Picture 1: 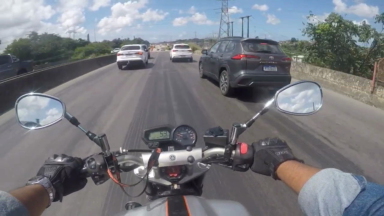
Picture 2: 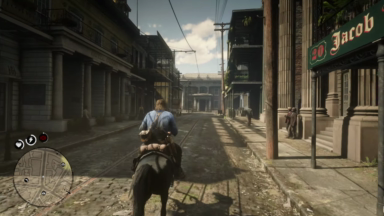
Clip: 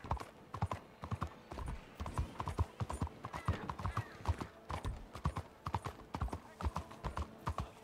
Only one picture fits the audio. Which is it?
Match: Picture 2